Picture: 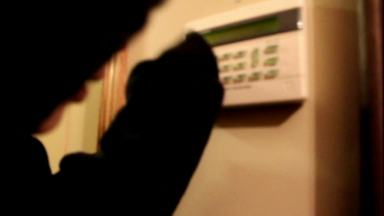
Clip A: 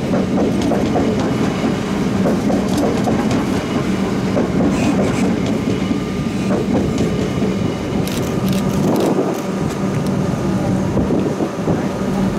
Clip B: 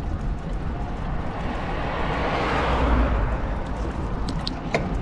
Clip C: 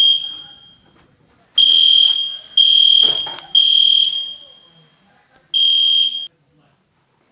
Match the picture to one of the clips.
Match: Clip C